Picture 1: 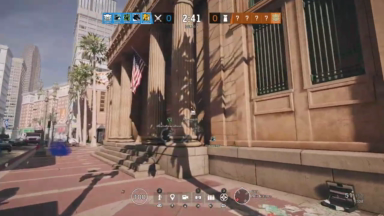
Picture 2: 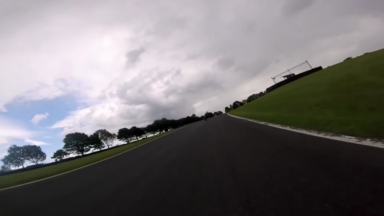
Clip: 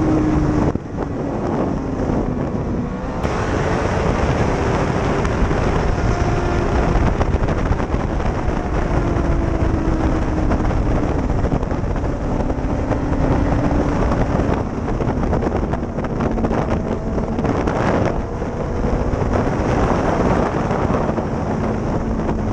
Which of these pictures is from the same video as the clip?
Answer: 2